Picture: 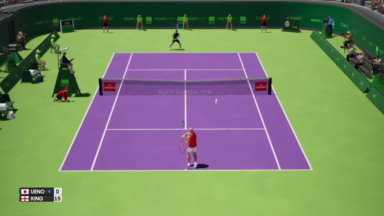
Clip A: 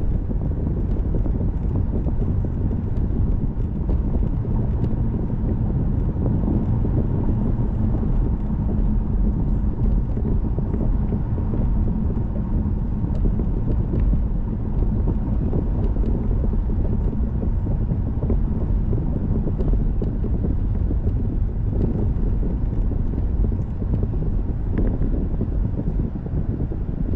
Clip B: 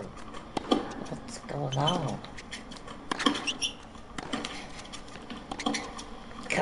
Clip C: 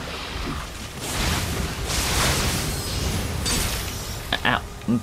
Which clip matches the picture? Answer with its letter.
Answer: B